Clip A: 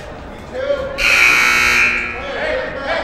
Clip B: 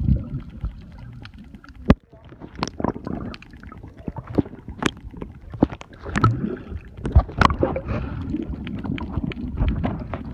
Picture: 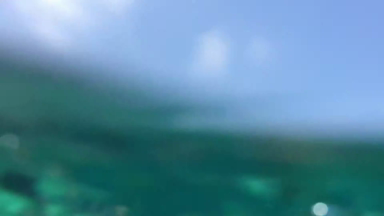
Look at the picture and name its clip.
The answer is B